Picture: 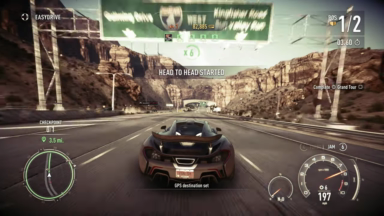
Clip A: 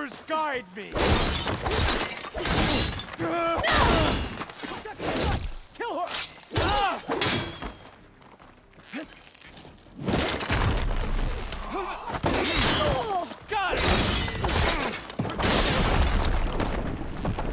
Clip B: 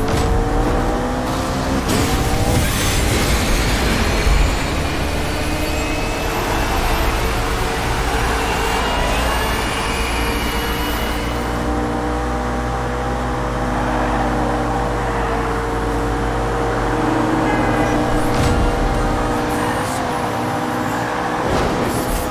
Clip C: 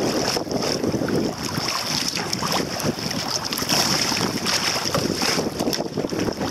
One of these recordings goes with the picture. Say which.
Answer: B